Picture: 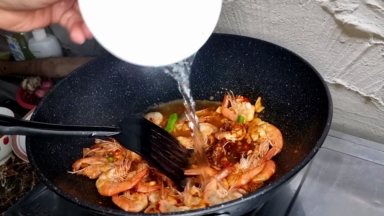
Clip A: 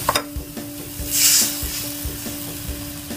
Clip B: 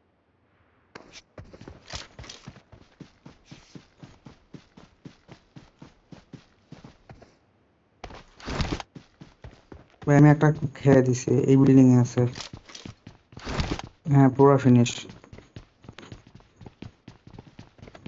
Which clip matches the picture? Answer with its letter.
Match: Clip A